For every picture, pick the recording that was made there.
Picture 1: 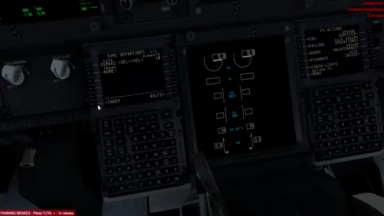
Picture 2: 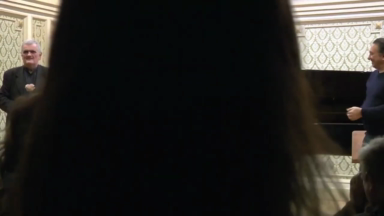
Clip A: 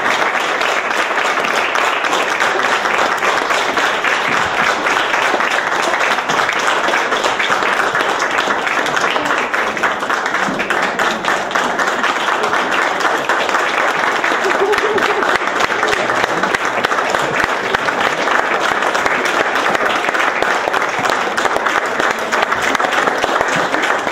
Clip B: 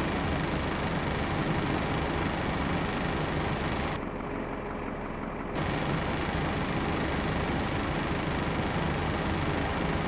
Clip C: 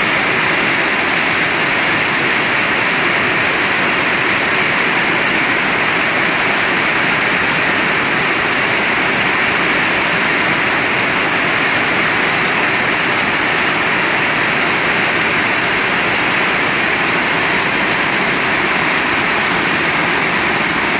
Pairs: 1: B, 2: A